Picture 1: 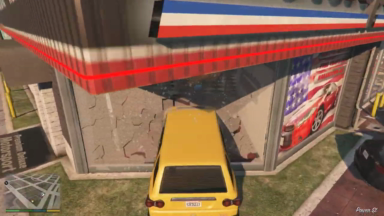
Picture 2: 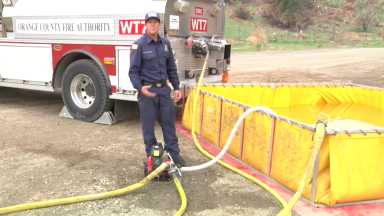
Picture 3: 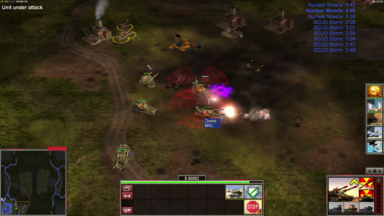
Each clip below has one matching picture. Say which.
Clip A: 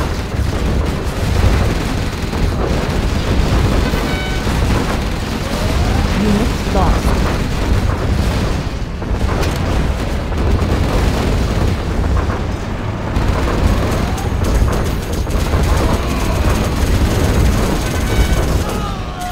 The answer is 3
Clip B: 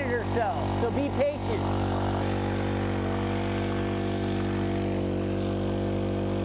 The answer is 2